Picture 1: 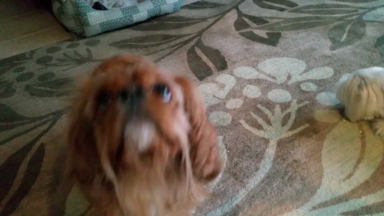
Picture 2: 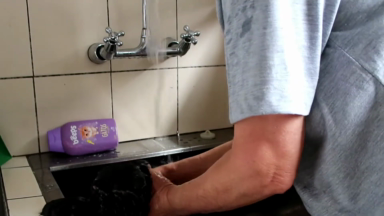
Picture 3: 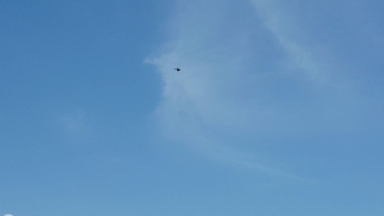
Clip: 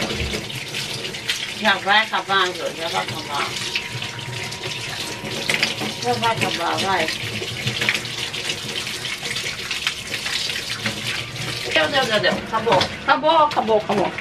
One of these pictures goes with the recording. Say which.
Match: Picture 2